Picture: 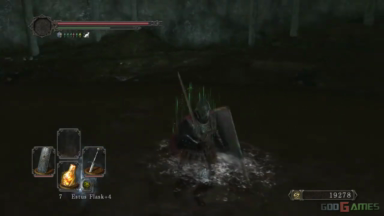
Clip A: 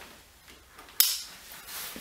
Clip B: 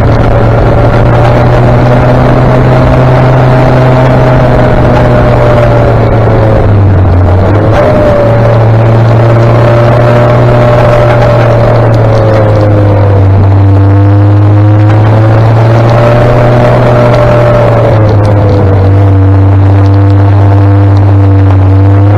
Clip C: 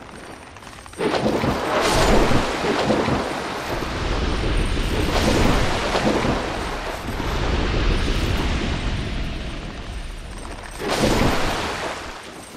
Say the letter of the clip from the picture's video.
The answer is C